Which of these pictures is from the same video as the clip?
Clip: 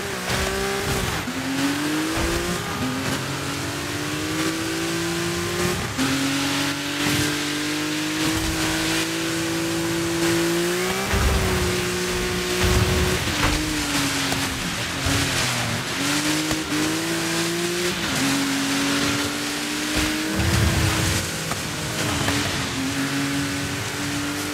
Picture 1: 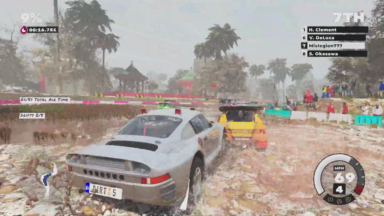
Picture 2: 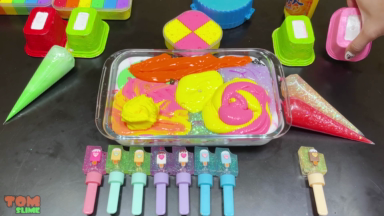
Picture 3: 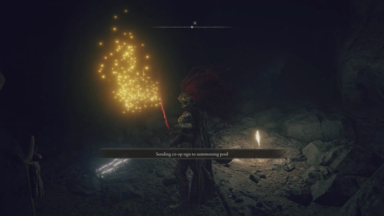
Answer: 1